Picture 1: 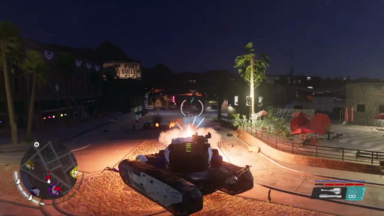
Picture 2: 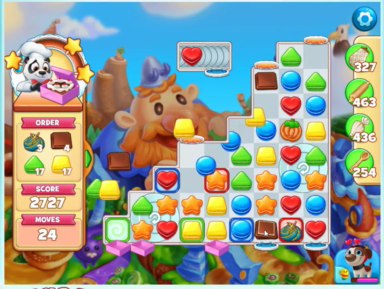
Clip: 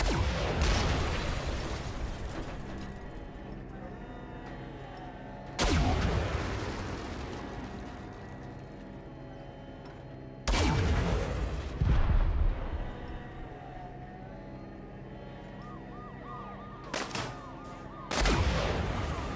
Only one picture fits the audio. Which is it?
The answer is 1